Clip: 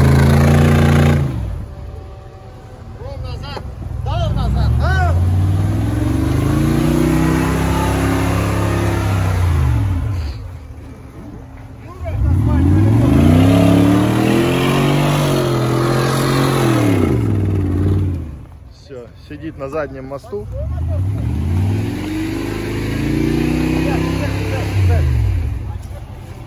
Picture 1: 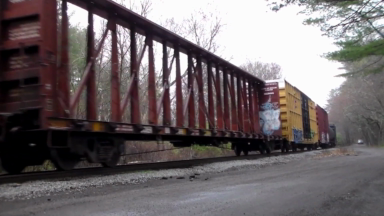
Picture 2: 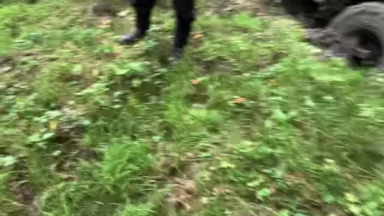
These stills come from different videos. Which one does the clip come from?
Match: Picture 2